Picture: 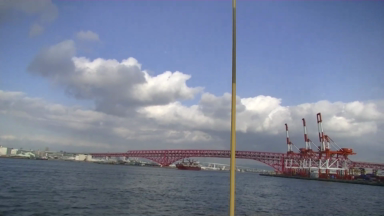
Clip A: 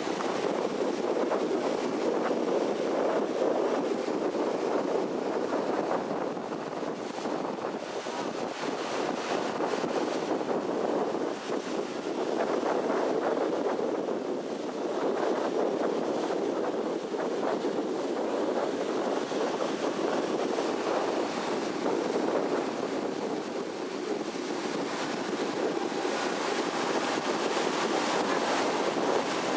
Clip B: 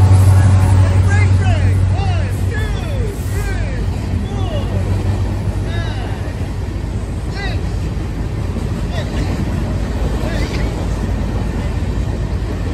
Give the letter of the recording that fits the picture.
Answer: A